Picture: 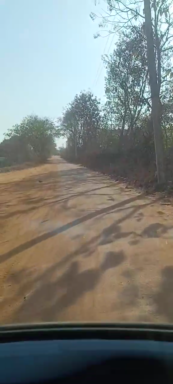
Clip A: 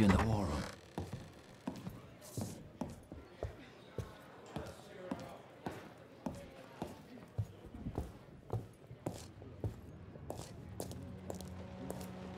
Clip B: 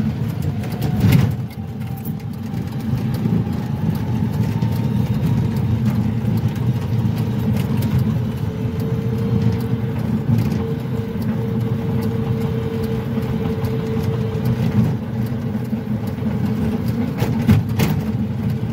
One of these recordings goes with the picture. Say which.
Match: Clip B